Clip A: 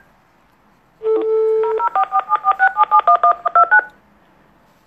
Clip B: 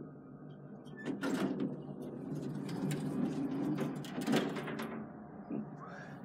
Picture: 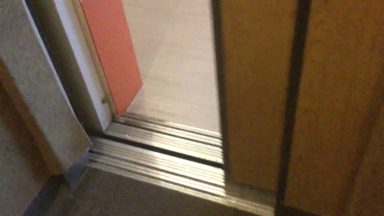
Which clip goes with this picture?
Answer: B